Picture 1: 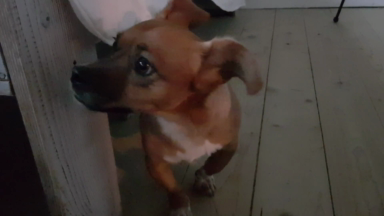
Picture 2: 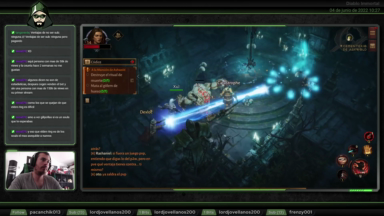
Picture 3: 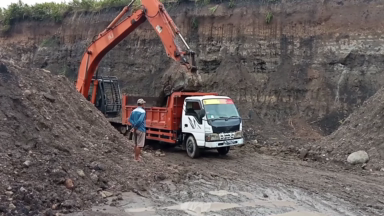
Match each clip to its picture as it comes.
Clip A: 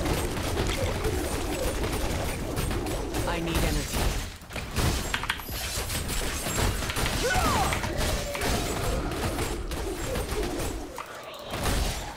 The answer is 2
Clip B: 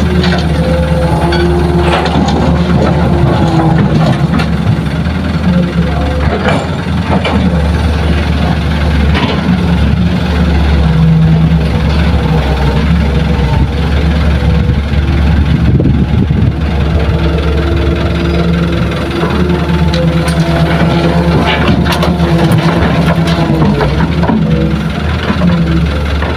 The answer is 3